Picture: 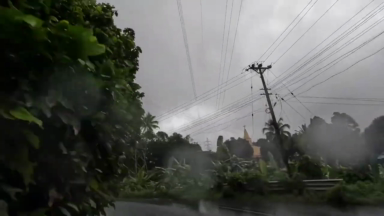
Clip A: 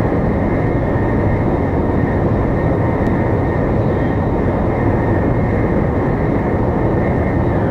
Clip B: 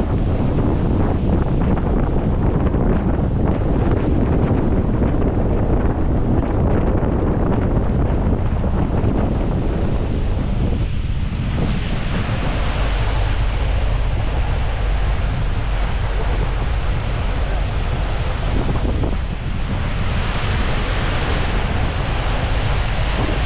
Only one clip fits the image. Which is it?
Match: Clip B